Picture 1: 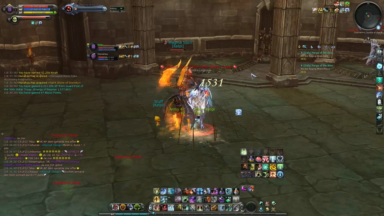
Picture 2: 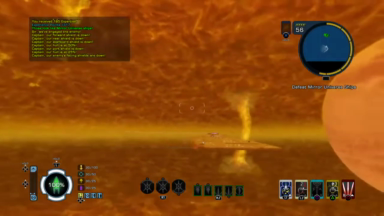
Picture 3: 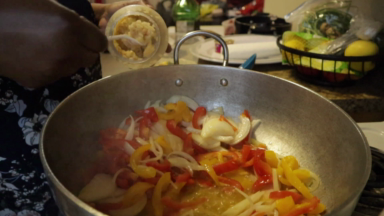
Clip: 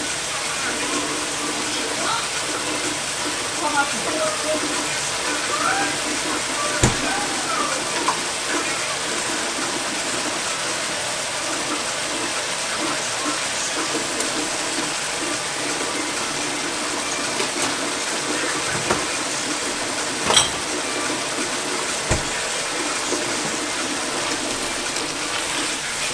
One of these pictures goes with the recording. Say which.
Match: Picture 3